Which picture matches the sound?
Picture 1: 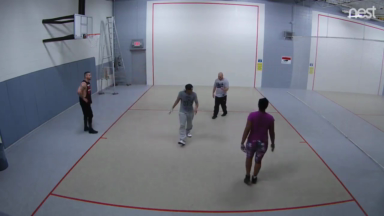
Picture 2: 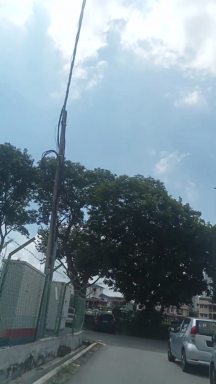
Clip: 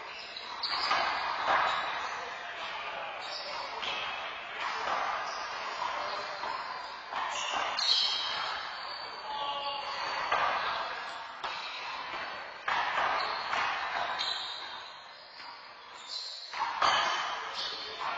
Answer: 1